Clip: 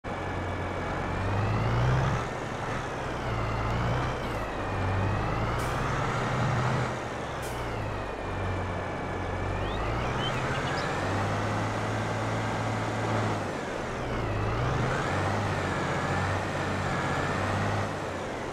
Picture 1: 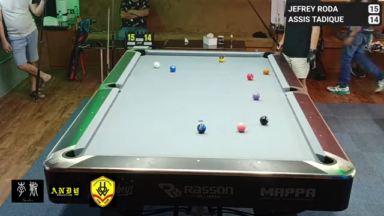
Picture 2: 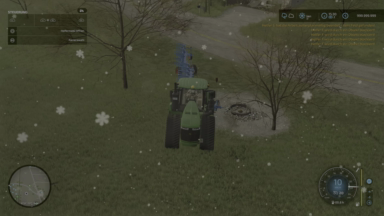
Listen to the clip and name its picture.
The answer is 2